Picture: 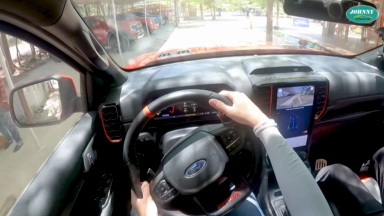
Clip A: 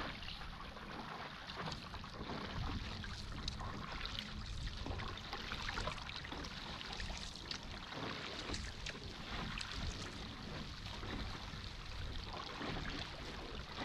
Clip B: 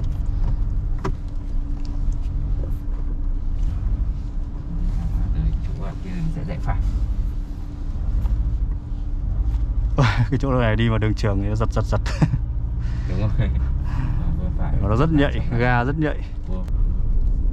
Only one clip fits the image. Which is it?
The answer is B